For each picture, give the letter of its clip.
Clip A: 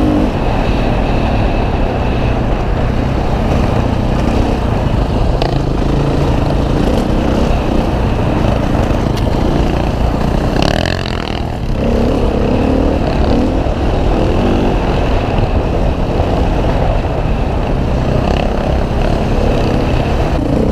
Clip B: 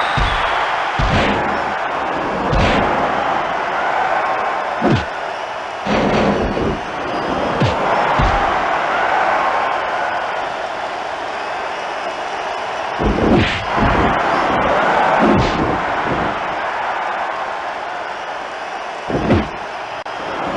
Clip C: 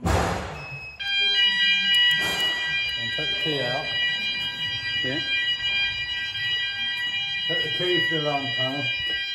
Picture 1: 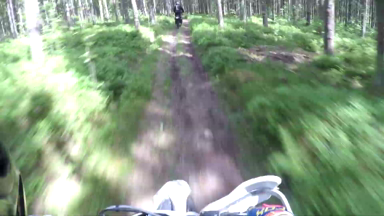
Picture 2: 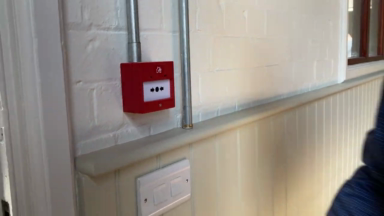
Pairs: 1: A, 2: C